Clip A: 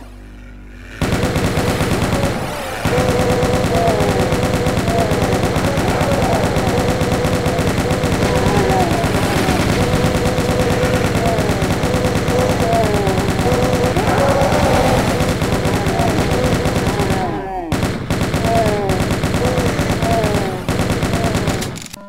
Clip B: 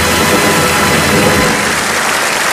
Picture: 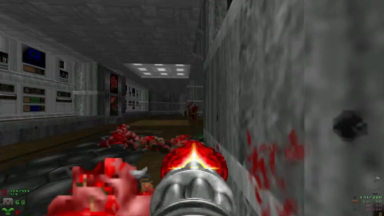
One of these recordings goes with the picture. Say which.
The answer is A